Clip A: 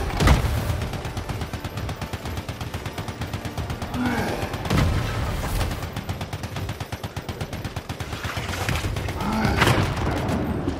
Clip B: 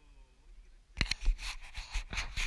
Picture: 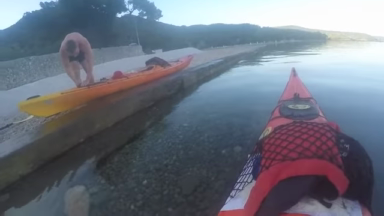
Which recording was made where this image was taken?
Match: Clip B